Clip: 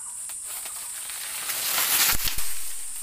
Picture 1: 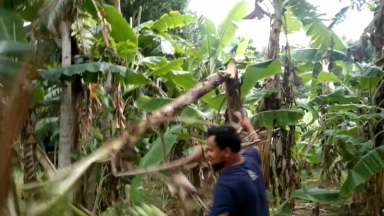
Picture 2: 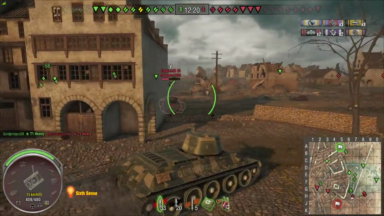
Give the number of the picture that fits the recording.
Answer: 1